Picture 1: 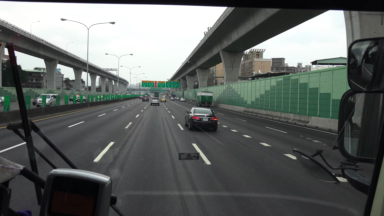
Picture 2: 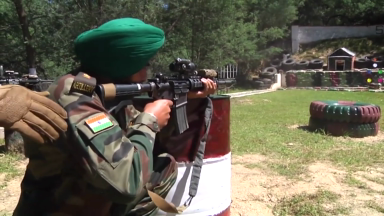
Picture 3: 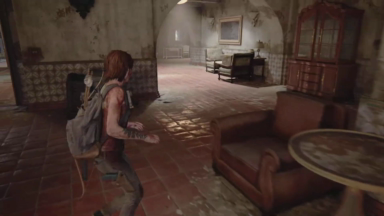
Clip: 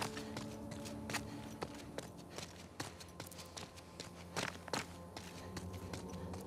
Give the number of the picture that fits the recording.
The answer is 3